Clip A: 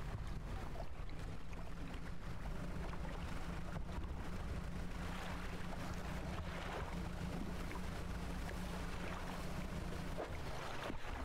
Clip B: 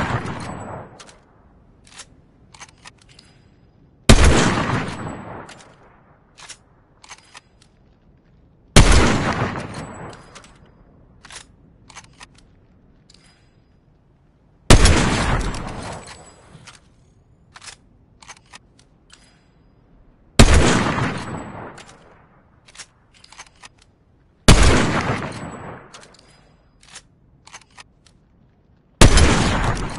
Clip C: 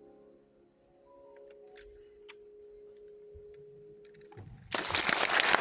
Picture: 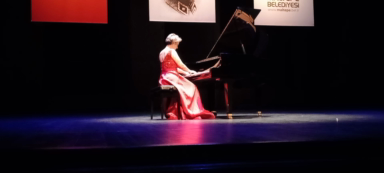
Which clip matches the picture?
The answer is C